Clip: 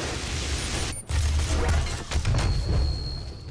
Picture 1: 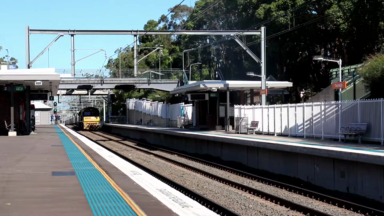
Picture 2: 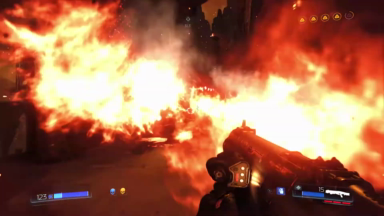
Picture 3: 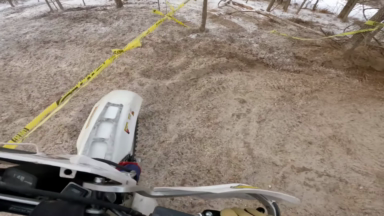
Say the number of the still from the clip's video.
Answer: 2